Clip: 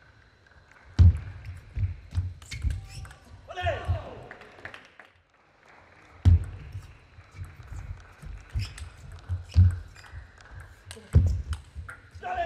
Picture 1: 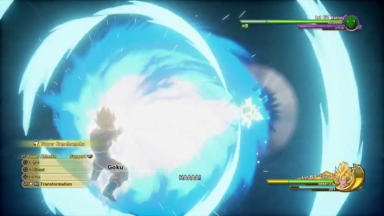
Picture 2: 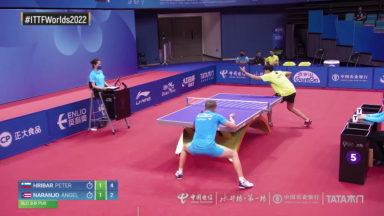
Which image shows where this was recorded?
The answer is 2